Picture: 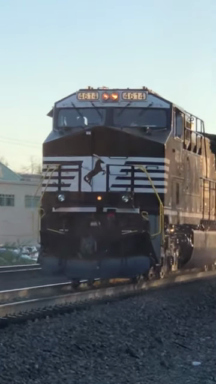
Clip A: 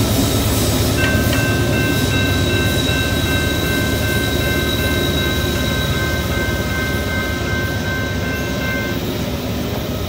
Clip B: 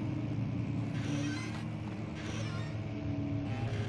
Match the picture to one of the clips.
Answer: A